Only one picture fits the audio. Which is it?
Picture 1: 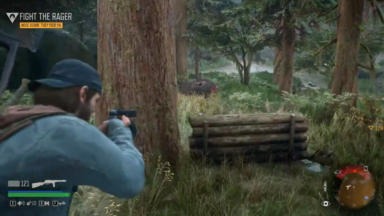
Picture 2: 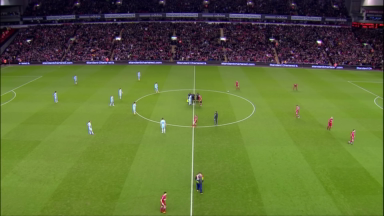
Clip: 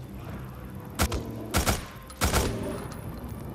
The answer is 1